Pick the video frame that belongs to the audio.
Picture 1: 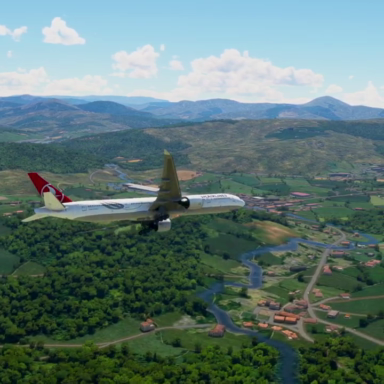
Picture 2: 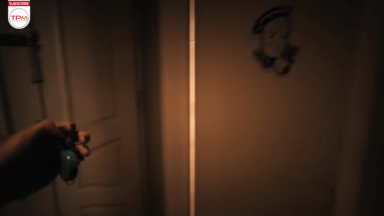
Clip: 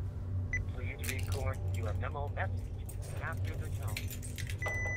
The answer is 2